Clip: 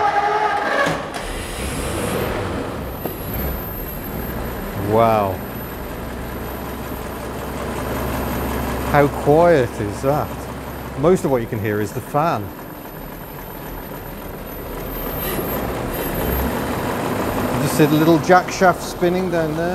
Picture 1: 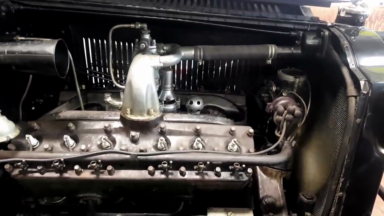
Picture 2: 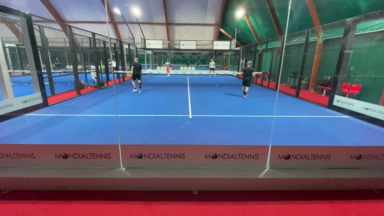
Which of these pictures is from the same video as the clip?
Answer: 1